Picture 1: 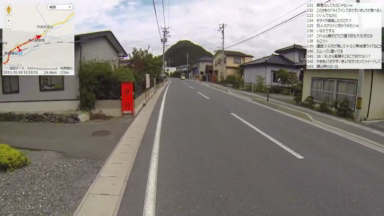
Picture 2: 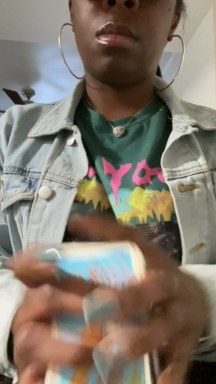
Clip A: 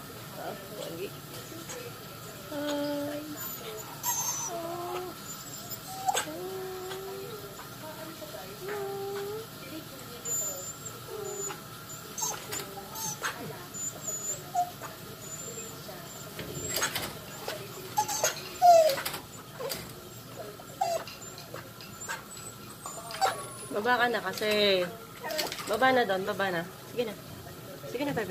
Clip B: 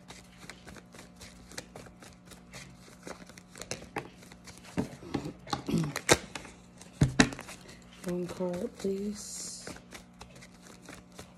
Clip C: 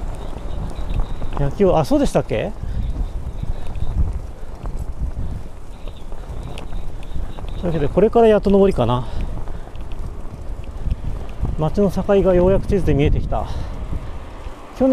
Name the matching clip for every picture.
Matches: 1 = C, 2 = B